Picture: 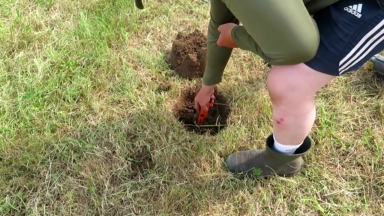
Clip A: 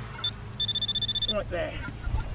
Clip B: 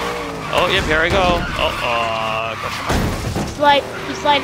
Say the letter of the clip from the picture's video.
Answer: A